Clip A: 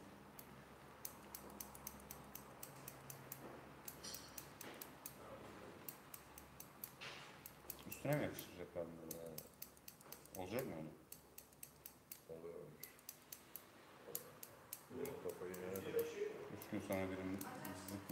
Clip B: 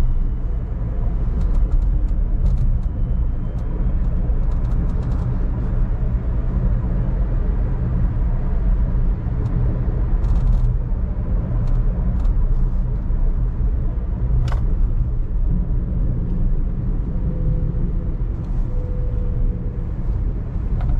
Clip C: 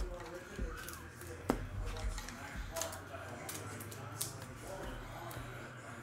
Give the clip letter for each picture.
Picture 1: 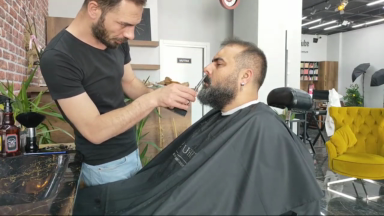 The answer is A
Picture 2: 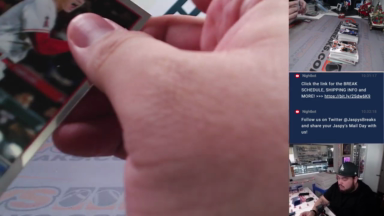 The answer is C